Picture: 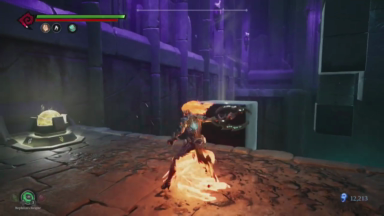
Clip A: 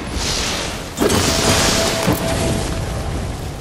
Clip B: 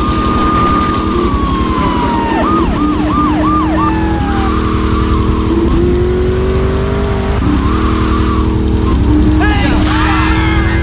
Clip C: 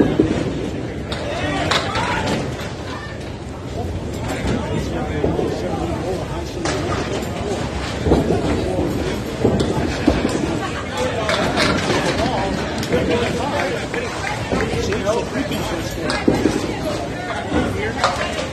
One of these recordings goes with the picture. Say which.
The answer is A